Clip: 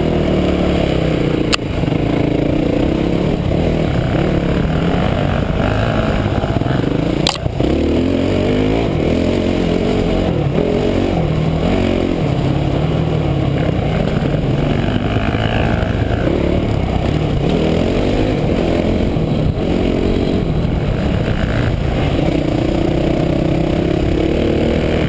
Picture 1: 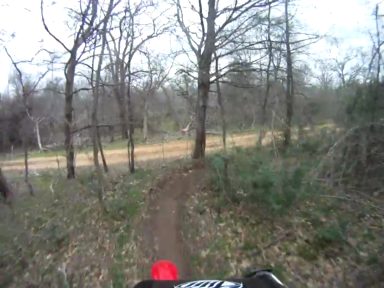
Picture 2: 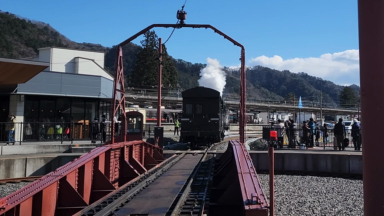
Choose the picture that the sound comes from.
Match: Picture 1